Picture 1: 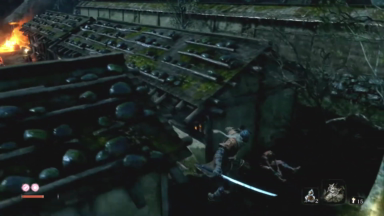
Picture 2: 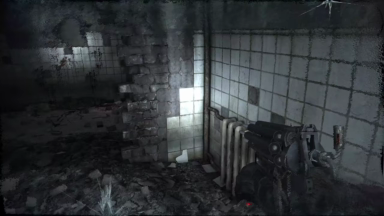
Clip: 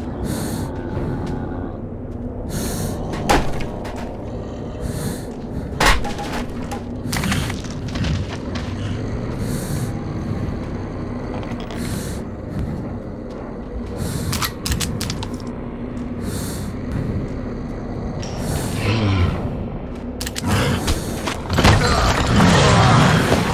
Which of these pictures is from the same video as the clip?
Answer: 2